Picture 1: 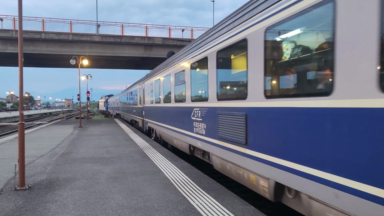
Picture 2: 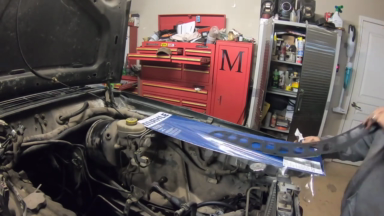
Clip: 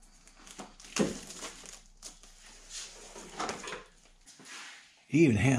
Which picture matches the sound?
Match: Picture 2